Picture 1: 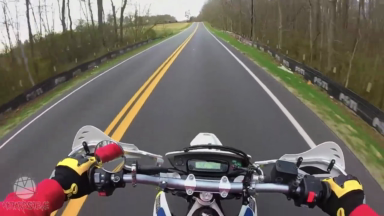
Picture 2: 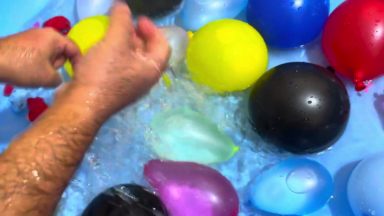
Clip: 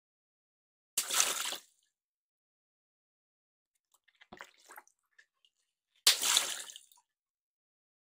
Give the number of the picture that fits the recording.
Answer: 2